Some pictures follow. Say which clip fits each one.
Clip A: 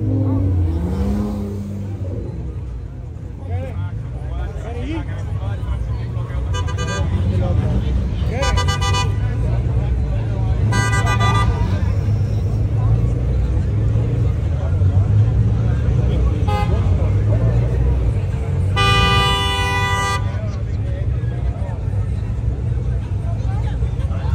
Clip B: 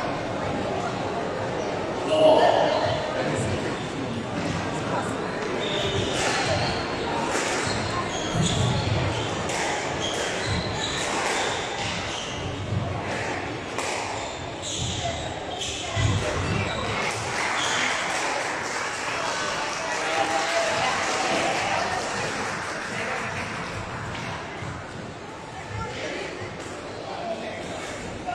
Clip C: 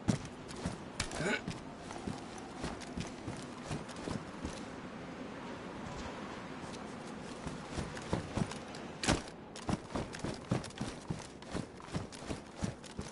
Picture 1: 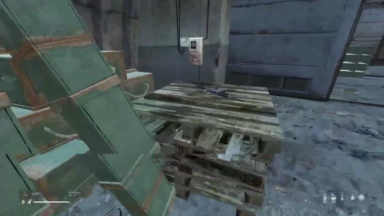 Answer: C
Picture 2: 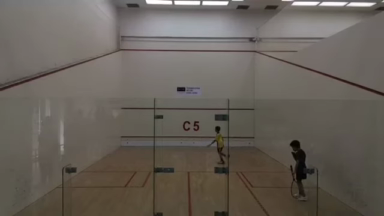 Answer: B